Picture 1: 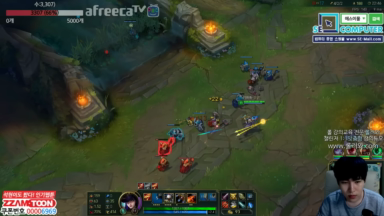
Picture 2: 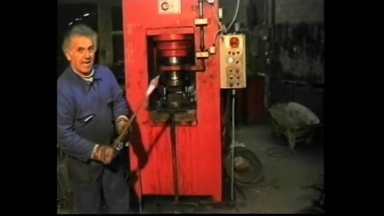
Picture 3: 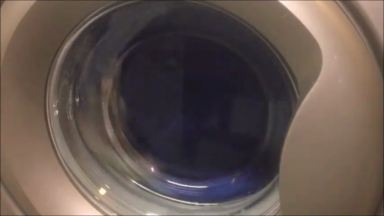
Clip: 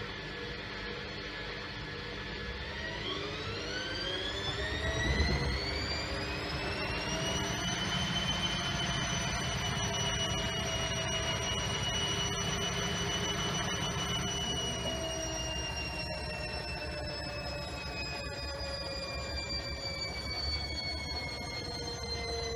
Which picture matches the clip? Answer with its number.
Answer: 3